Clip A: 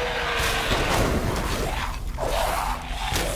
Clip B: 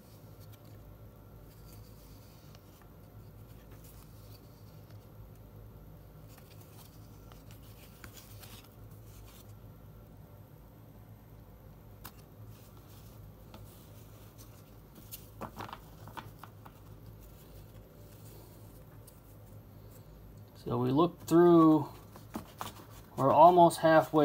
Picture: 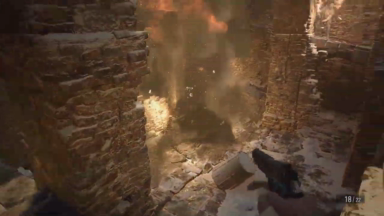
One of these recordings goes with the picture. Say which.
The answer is A